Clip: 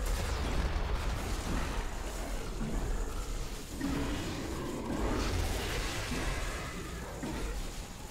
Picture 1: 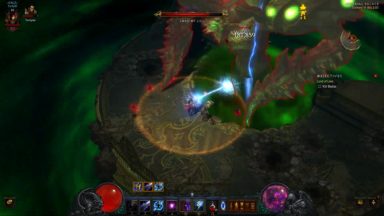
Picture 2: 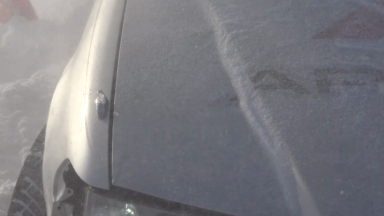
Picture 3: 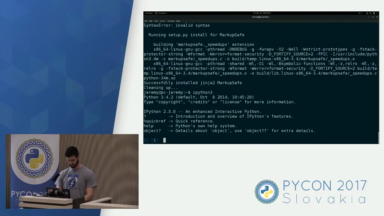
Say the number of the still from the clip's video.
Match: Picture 1